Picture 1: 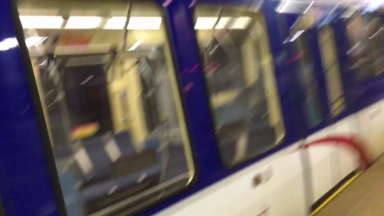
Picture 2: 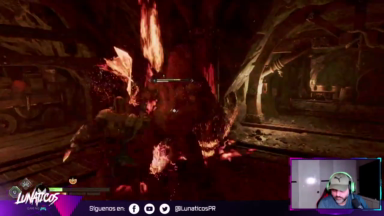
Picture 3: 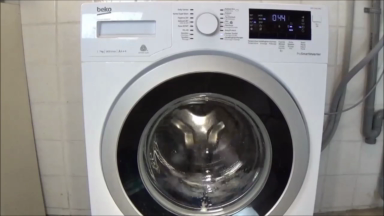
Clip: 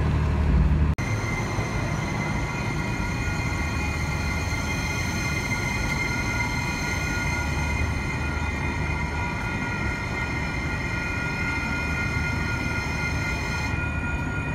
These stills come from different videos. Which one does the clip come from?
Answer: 1